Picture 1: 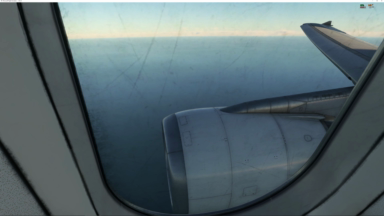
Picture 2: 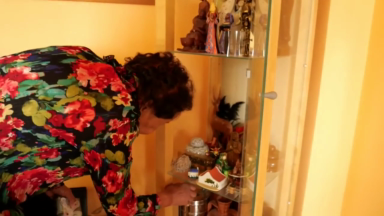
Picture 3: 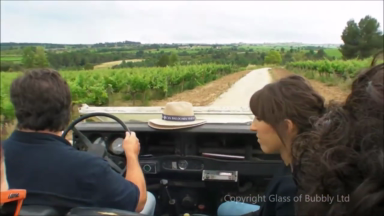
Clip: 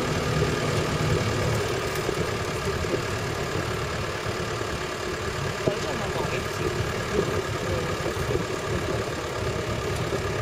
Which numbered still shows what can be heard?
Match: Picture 3